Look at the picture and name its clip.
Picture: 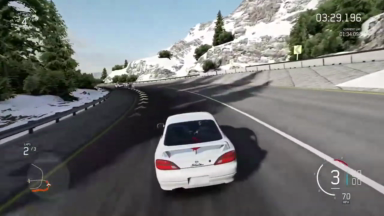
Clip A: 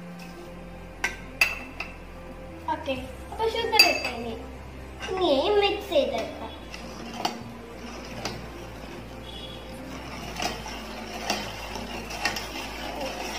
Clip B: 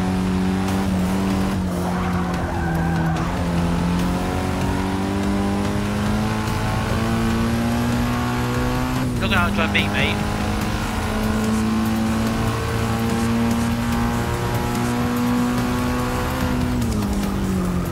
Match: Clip B